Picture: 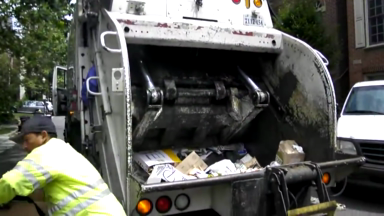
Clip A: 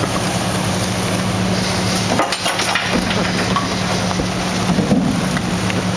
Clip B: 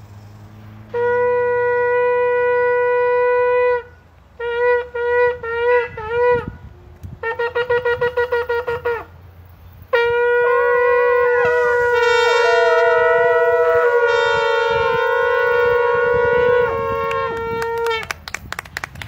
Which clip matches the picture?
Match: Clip A